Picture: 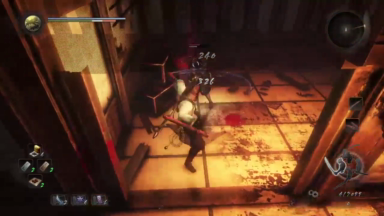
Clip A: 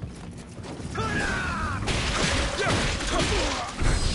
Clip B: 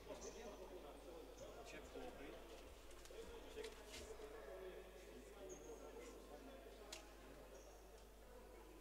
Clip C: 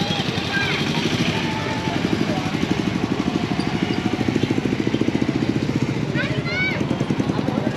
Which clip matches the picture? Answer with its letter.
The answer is A